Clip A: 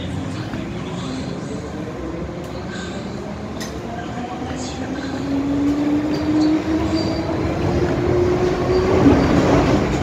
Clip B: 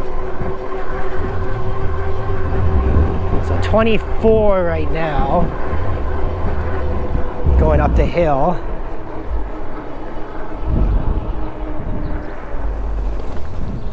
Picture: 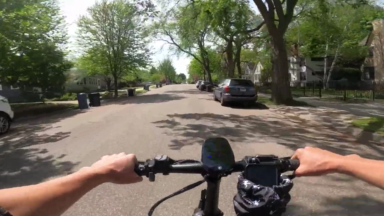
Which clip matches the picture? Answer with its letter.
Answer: B